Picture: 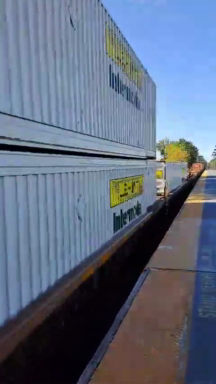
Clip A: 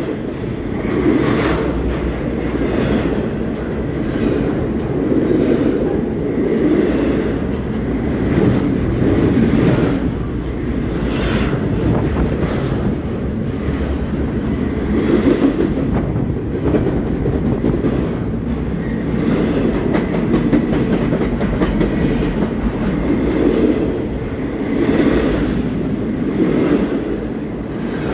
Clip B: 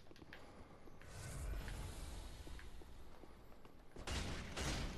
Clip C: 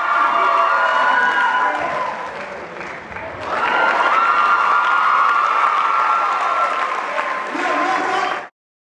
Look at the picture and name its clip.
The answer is A